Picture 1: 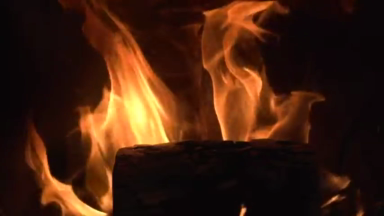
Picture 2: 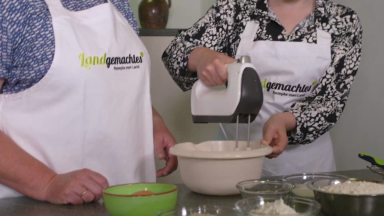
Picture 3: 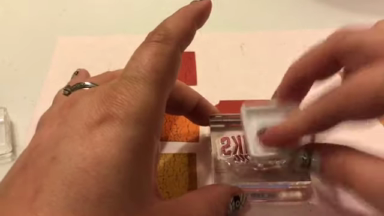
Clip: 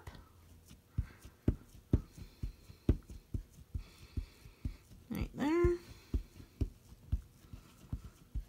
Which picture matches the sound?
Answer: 3